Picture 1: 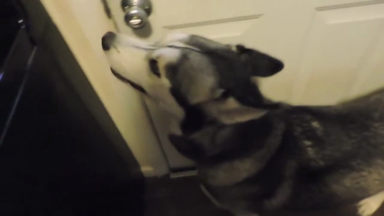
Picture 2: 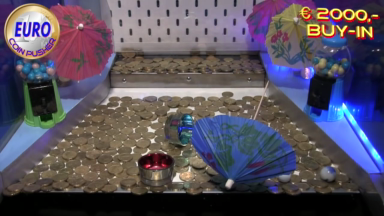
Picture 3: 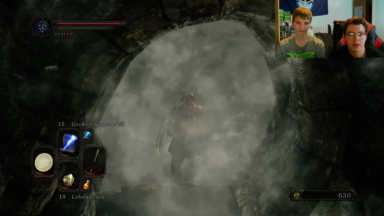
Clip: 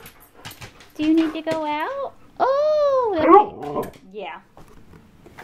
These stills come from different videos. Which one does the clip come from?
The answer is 1